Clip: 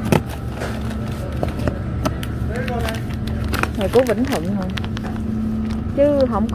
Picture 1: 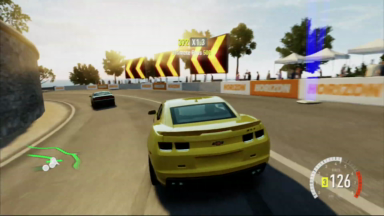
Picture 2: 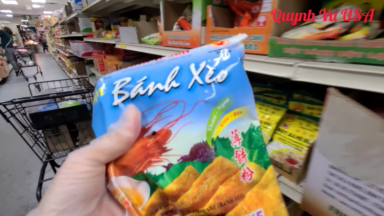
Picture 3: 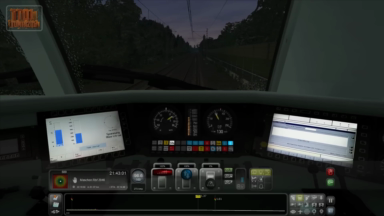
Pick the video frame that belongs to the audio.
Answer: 2